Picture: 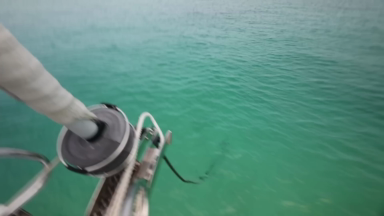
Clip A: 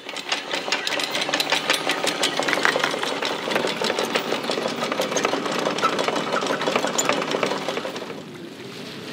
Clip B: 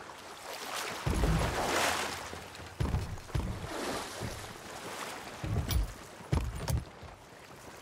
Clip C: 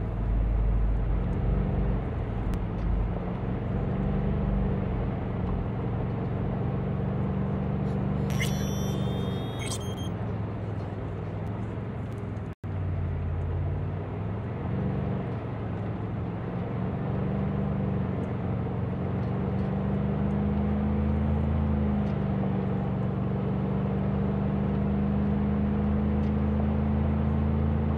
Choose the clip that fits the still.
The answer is A